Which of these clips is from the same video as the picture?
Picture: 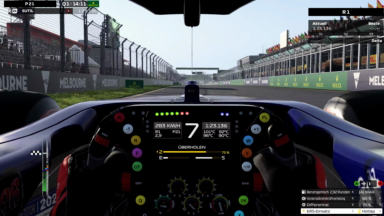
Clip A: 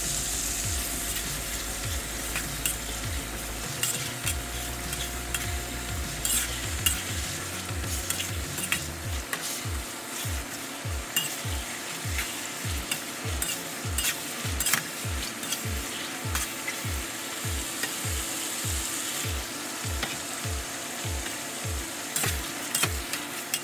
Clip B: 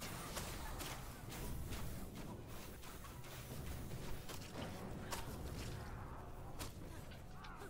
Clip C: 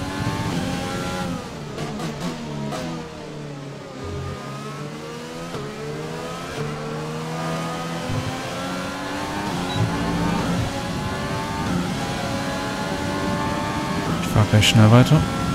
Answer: C